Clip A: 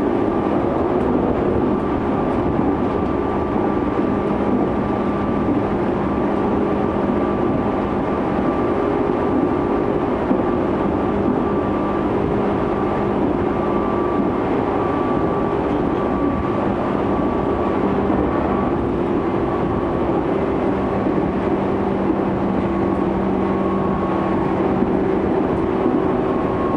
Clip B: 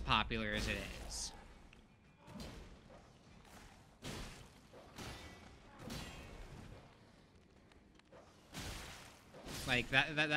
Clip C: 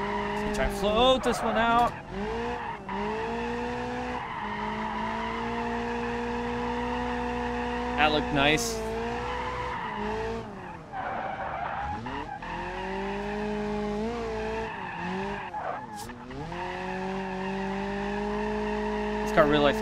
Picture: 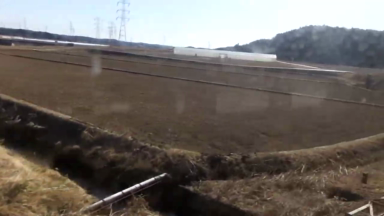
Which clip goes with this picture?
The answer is A